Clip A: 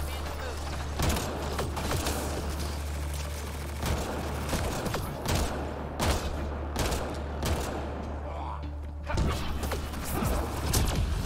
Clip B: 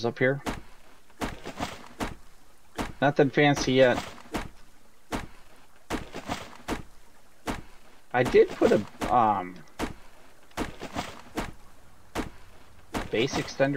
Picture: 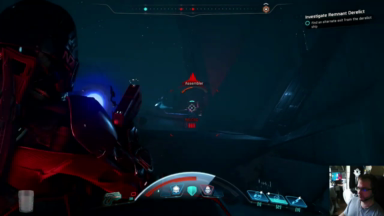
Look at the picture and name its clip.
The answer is A